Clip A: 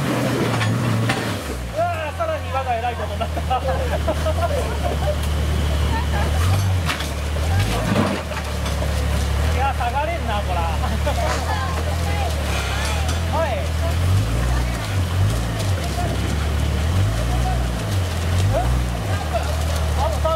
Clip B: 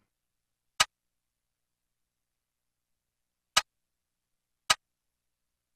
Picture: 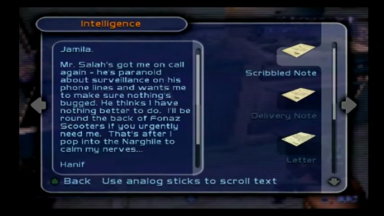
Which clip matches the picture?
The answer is B